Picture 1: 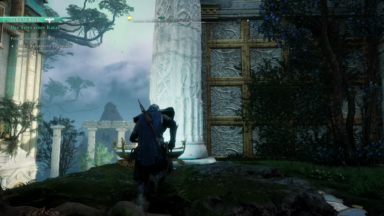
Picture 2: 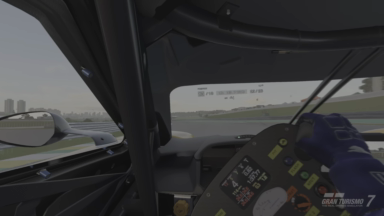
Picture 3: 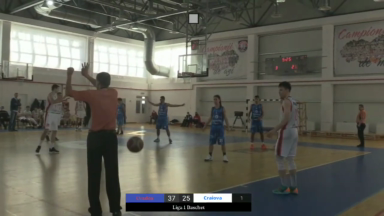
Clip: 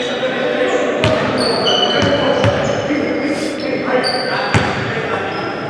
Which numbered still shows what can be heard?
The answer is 3